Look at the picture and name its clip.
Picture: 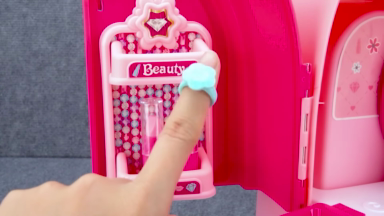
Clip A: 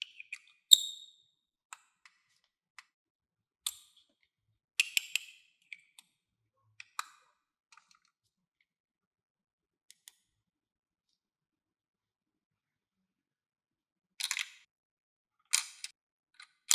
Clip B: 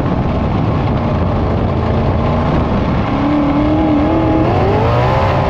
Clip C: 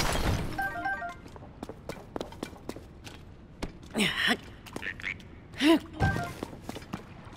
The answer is A